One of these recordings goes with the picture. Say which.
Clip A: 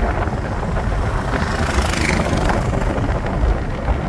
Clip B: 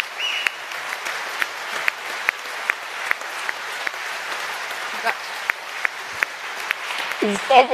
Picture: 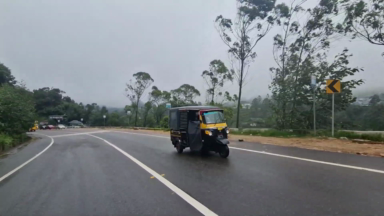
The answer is A